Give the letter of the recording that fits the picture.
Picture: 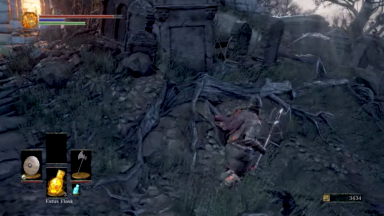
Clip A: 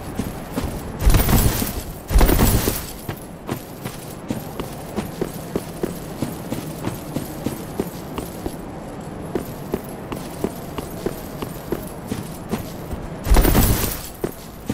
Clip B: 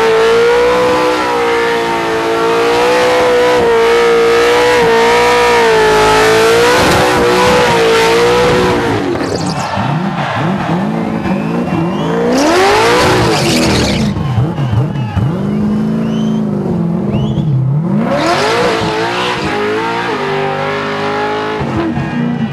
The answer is A